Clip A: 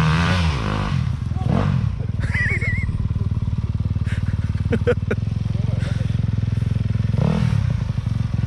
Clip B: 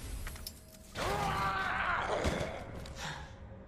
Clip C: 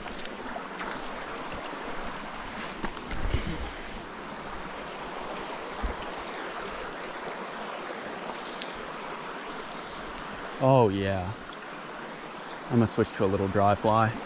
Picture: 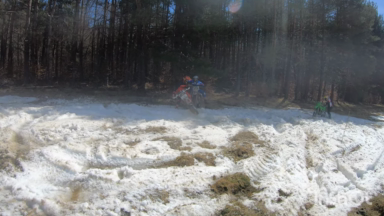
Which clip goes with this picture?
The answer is A